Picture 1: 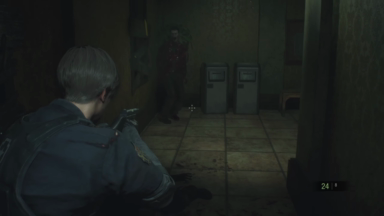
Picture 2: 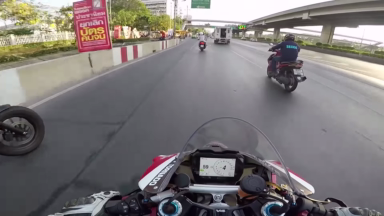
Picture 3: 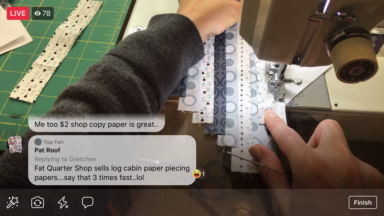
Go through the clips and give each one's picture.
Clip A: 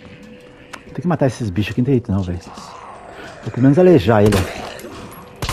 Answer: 1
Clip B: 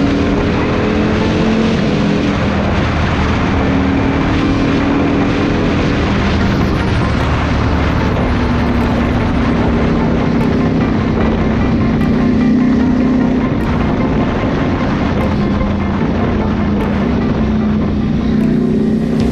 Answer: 2